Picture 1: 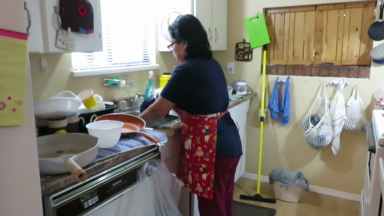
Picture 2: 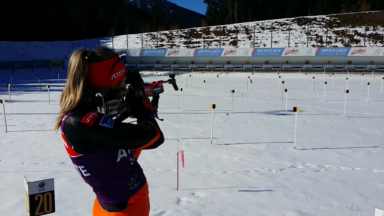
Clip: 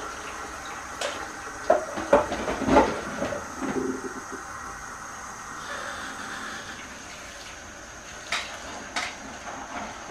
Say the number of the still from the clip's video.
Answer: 1